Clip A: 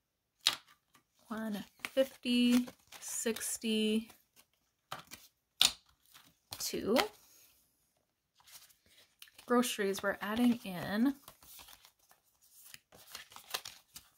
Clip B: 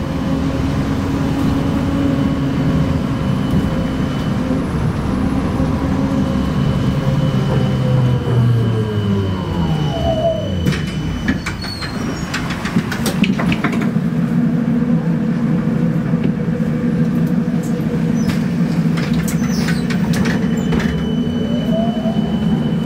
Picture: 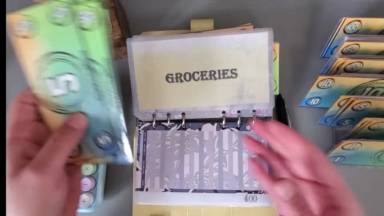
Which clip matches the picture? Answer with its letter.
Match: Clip A